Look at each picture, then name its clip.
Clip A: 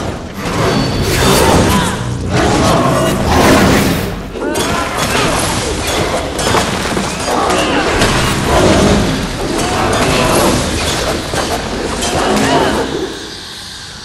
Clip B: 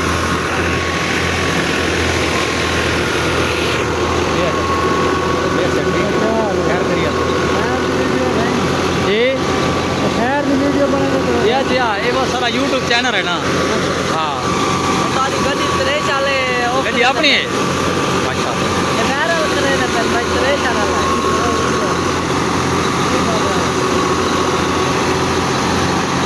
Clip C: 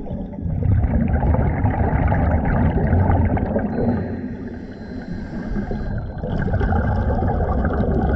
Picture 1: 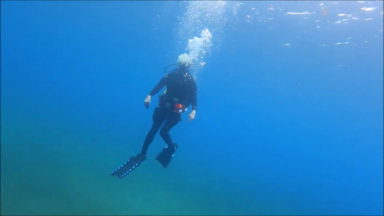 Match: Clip C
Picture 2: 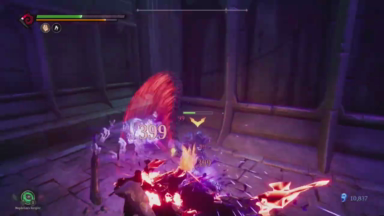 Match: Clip A